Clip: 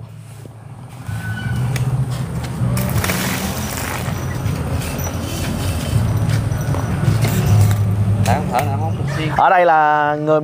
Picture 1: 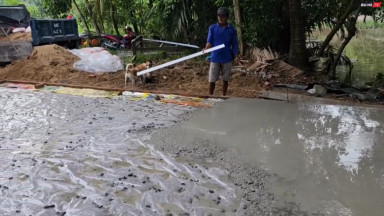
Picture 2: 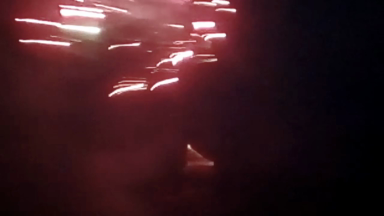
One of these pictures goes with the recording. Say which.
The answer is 1